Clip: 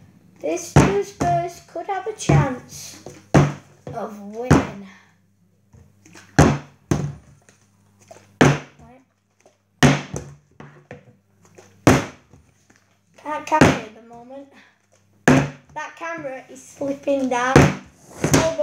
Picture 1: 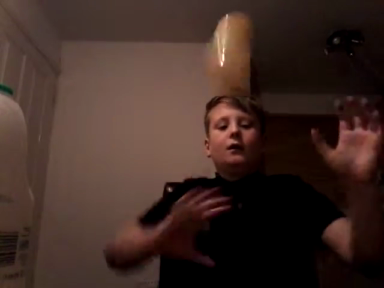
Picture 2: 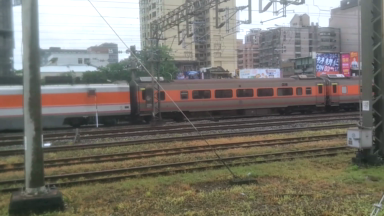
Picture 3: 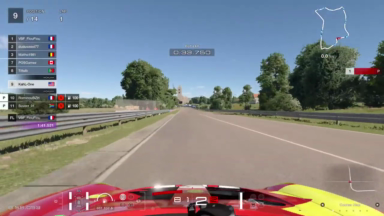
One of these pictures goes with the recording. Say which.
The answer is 1